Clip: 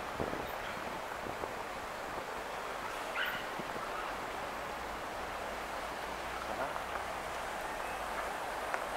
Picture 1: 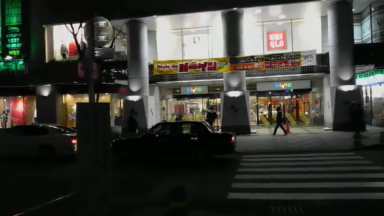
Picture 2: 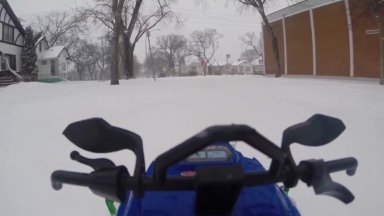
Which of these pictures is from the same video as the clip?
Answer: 1